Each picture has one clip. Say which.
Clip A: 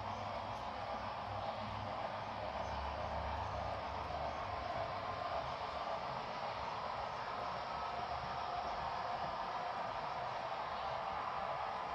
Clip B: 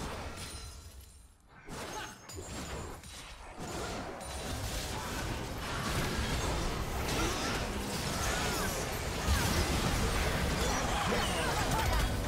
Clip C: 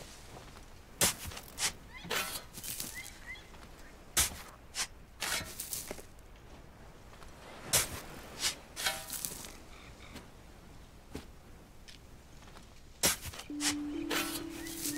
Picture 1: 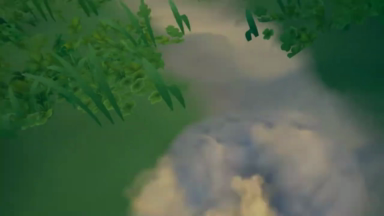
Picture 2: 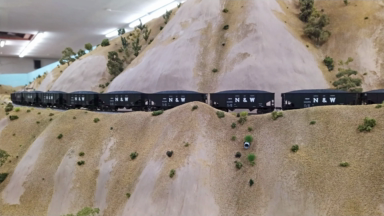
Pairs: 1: C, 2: A